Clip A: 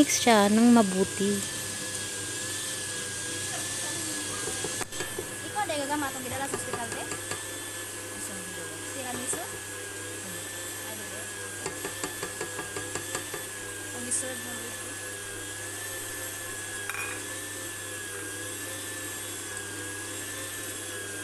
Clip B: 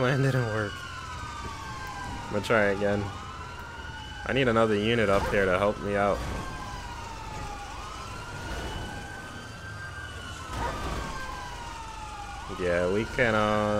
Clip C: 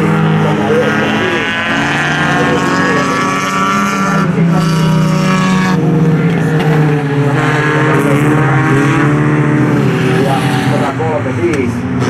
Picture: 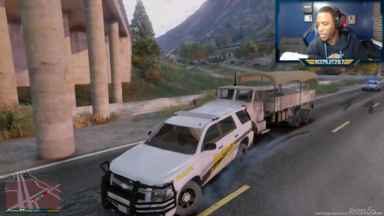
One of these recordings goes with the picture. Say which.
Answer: B